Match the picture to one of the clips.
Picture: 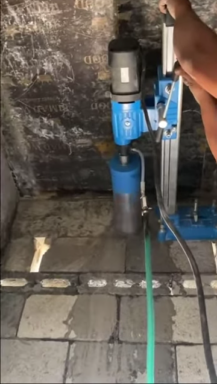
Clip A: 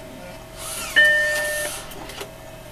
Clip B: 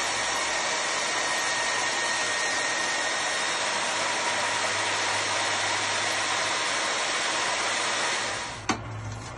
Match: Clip B